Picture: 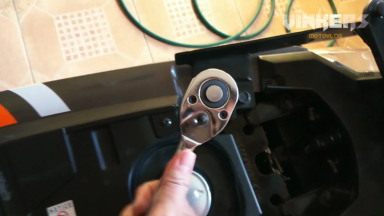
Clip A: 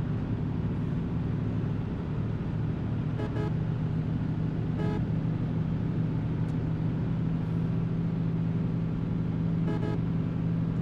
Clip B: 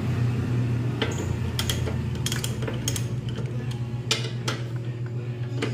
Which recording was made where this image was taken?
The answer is B